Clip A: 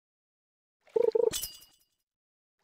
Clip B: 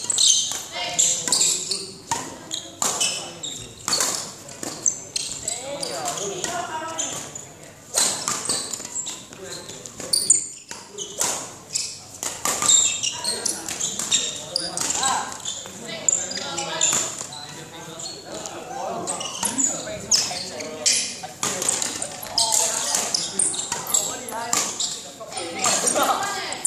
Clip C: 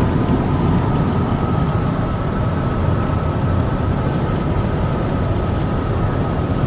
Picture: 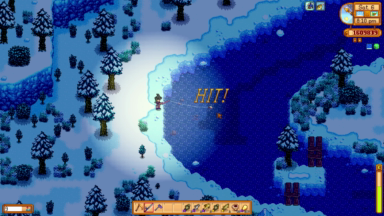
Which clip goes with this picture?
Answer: A